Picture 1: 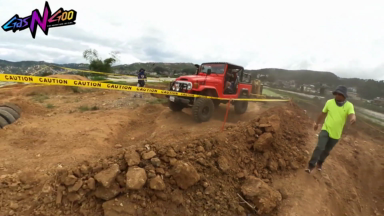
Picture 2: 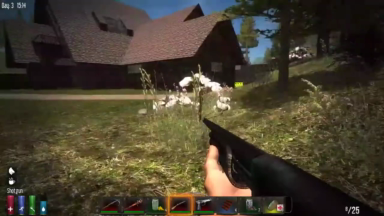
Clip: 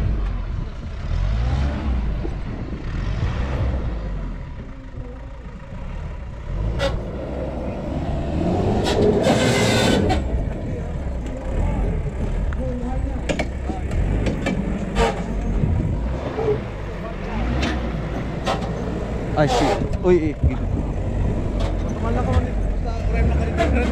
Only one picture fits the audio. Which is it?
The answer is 1